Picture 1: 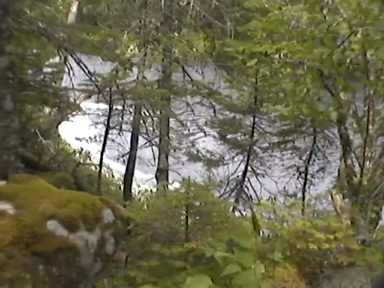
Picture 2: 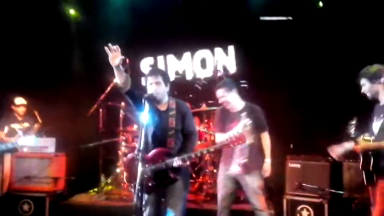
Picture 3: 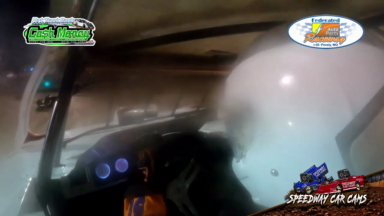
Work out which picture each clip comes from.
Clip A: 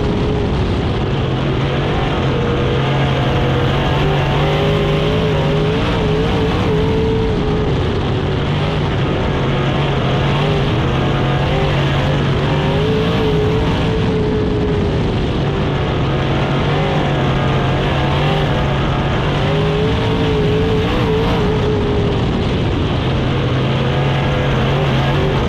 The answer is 3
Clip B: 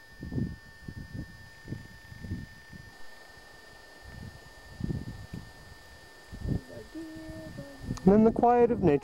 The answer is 1